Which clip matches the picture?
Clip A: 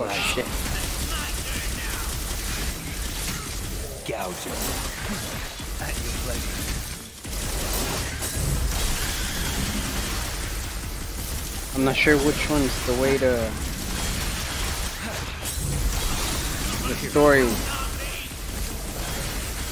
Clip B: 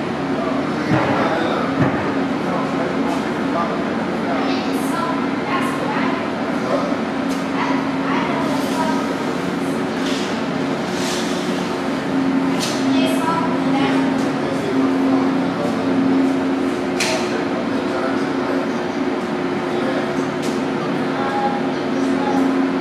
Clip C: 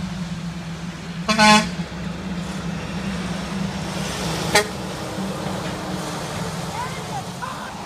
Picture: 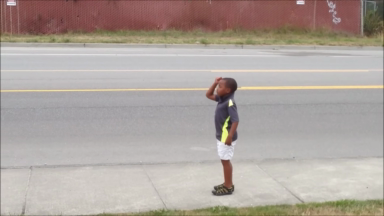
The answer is C